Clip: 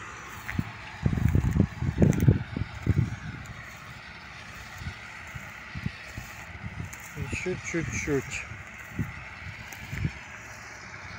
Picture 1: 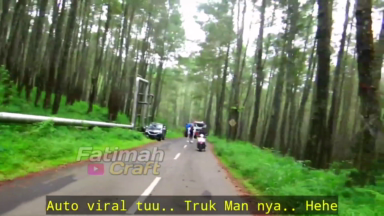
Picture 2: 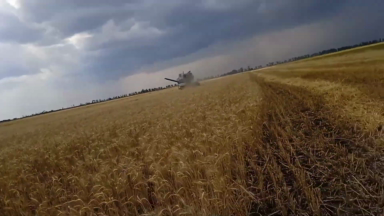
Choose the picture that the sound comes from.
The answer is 2